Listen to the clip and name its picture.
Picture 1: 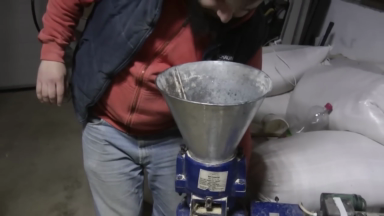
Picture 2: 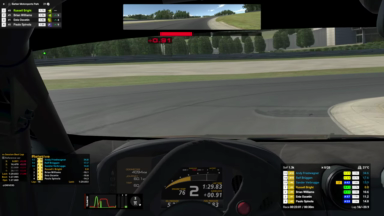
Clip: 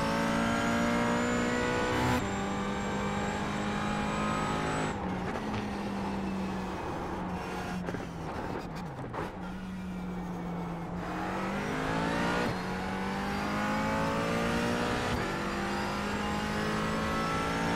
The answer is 2